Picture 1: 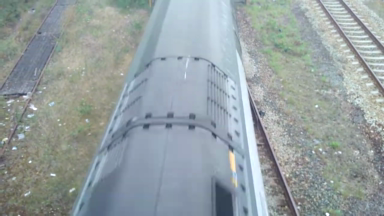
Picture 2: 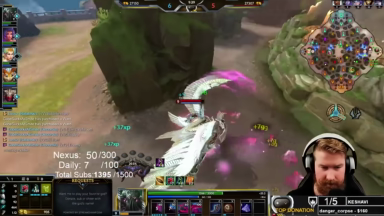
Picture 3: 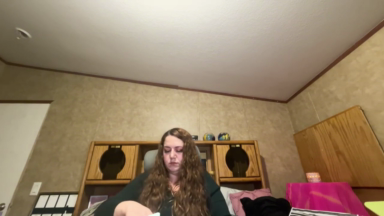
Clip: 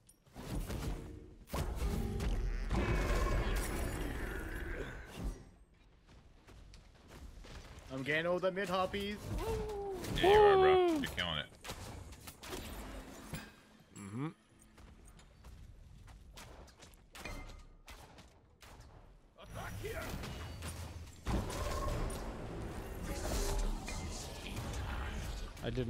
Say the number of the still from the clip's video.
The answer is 2